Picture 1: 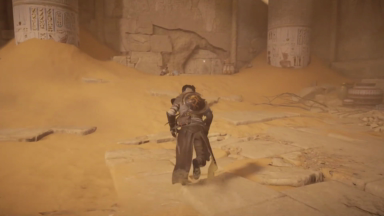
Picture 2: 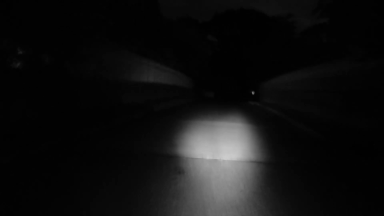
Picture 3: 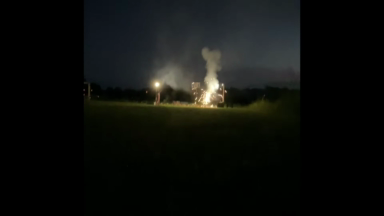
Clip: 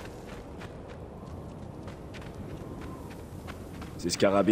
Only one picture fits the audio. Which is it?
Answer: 1